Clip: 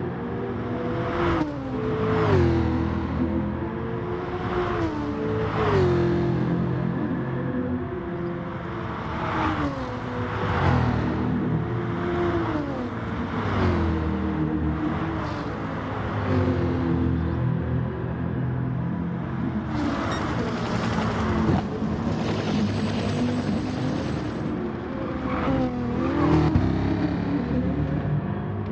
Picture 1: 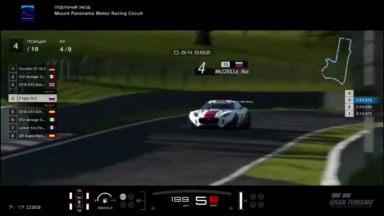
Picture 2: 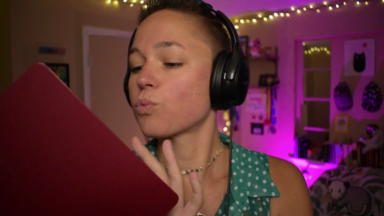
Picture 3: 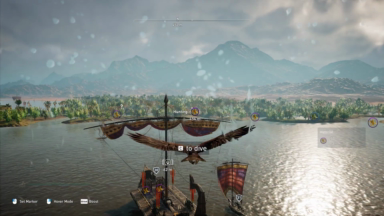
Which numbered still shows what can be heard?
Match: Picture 1